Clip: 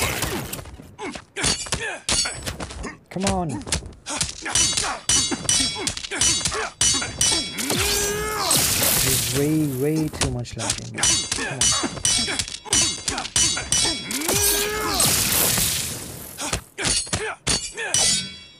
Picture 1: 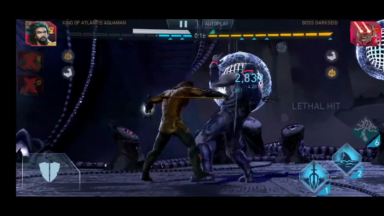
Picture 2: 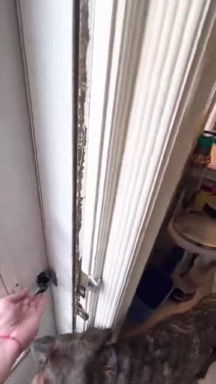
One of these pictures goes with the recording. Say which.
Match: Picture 1